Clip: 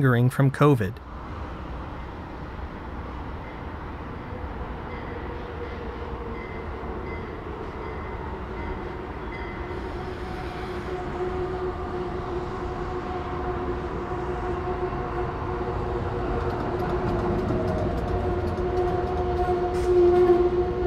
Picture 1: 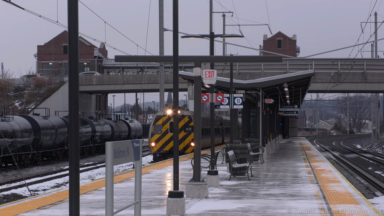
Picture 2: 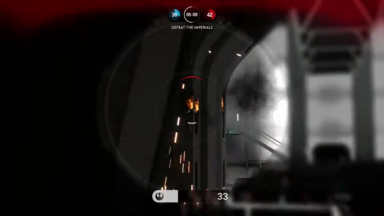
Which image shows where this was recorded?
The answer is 1